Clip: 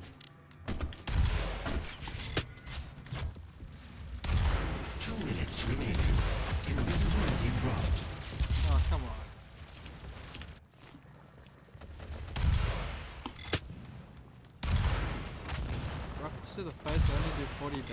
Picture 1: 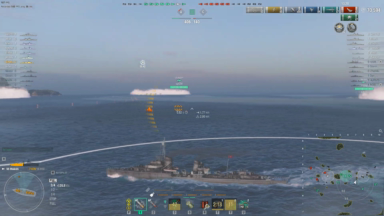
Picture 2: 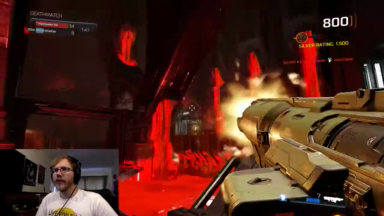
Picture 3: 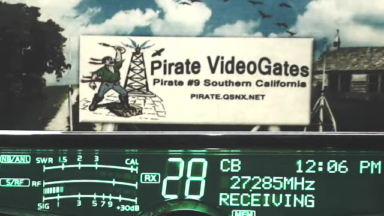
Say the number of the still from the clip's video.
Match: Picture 2